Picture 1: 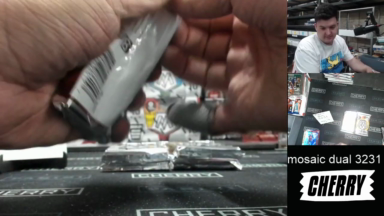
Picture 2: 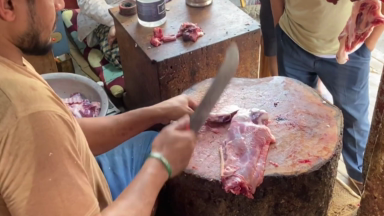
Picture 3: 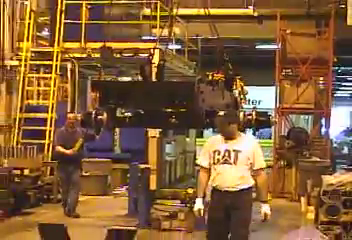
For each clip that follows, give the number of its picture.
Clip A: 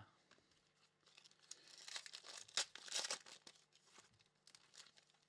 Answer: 1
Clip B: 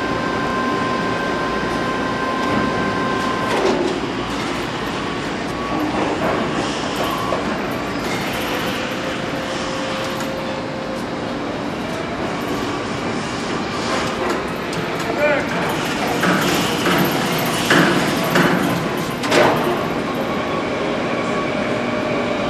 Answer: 3